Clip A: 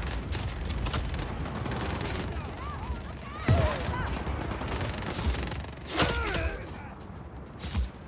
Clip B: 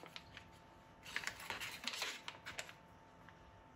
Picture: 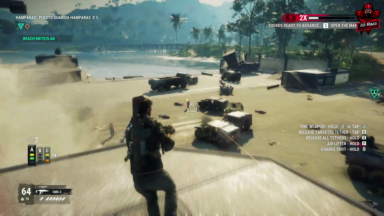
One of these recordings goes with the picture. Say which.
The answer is A